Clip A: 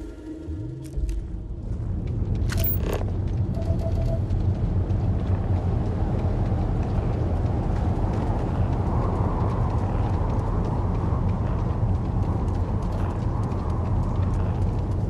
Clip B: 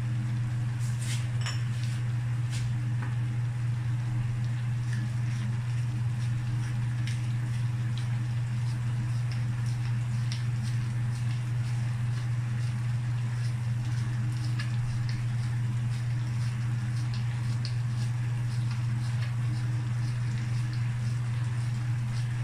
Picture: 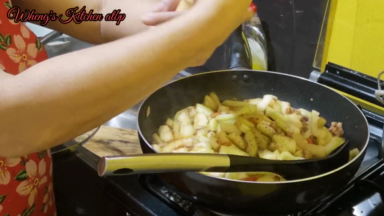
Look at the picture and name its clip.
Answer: B